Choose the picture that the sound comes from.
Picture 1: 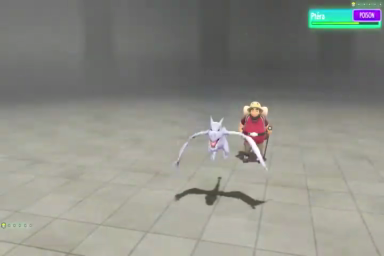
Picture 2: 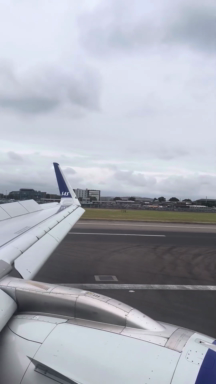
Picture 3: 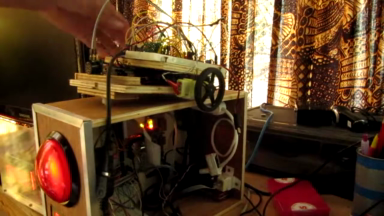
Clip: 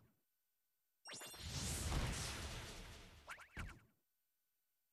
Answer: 1